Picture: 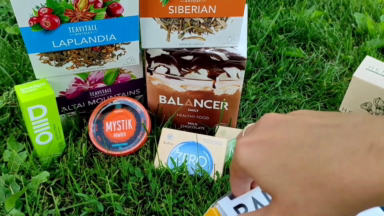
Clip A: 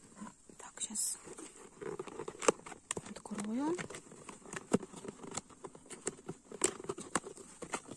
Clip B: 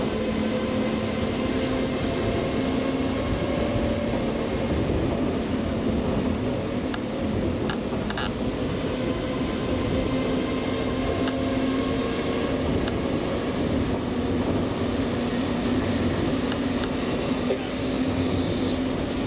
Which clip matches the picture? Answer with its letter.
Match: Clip A